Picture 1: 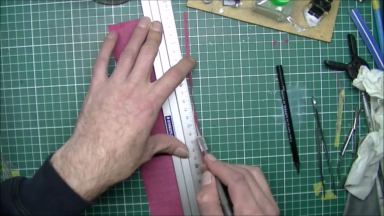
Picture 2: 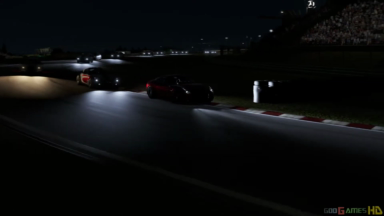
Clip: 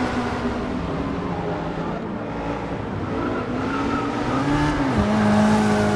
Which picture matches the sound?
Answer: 2